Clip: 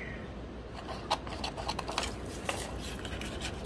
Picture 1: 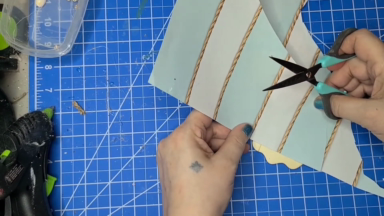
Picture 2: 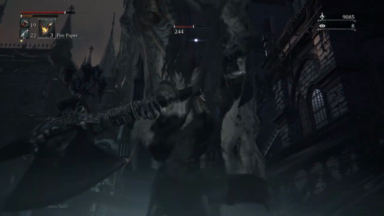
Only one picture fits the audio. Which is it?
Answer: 1